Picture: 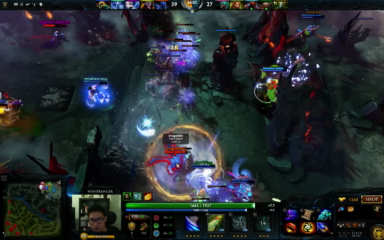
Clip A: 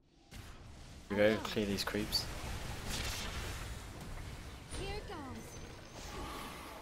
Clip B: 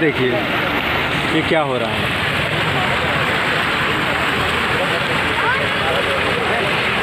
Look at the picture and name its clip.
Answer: A